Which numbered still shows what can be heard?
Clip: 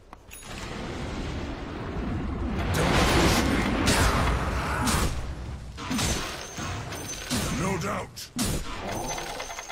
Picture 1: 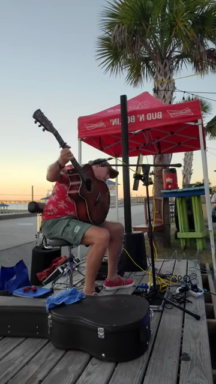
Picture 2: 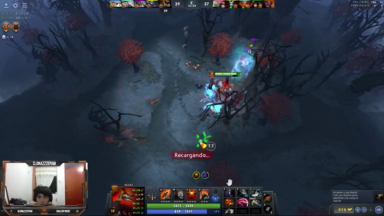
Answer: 2